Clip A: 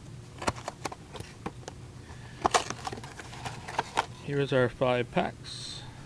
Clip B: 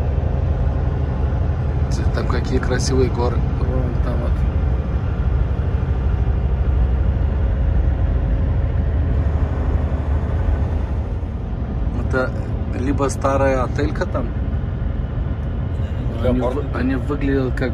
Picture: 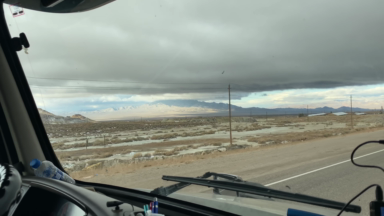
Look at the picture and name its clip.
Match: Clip B